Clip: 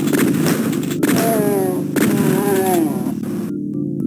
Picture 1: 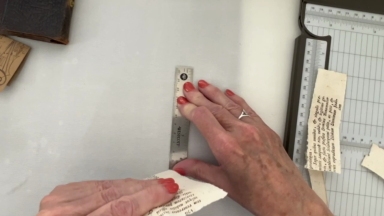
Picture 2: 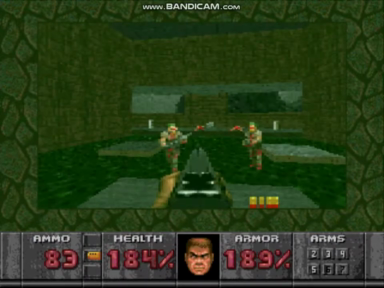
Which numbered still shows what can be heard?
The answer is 2